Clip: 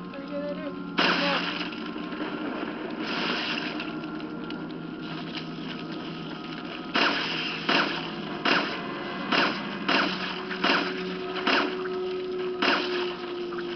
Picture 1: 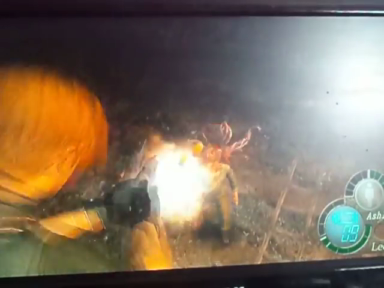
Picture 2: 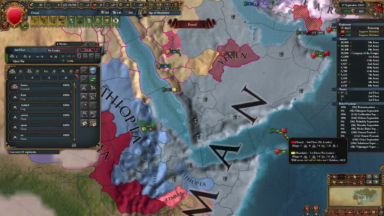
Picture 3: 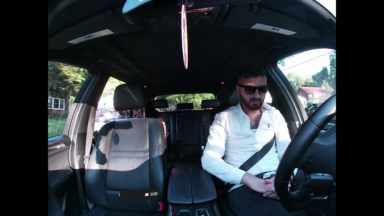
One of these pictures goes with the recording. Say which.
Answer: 1